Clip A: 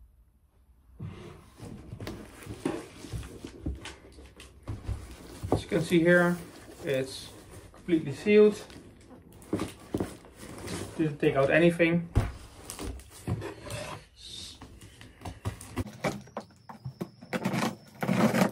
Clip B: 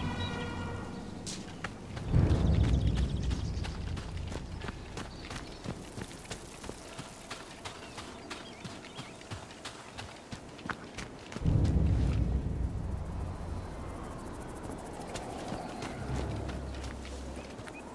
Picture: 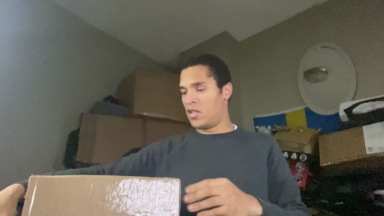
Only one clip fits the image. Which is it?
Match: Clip A